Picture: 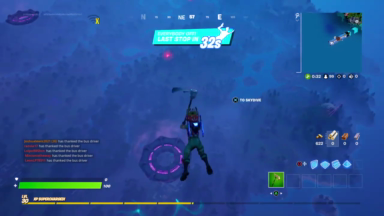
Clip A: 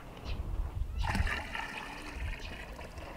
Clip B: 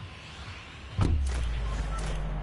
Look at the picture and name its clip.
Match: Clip B